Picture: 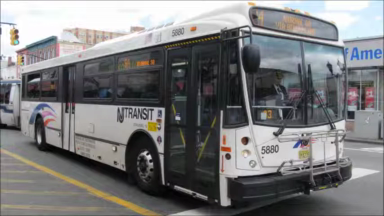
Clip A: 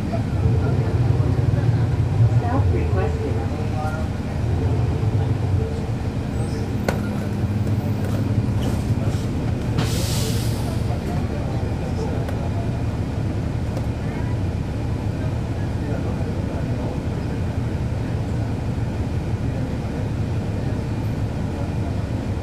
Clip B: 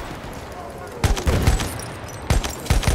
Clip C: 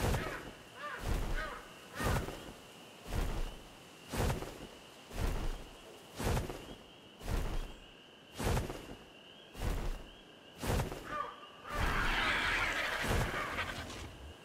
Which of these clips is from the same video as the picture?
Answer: A